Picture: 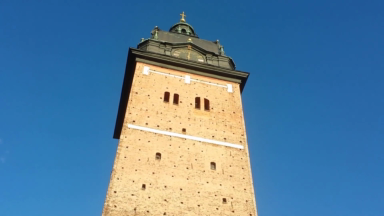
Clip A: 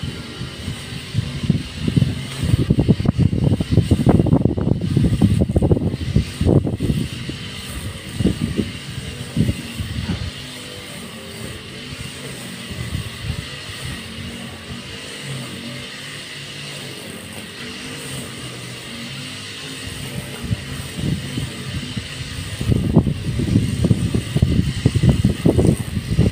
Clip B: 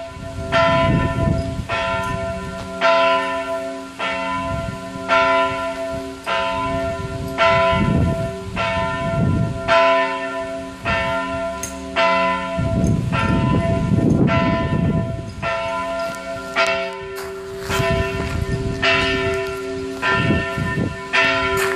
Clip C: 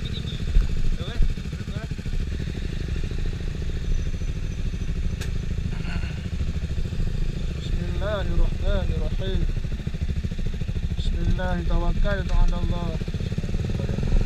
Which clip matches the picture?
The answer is B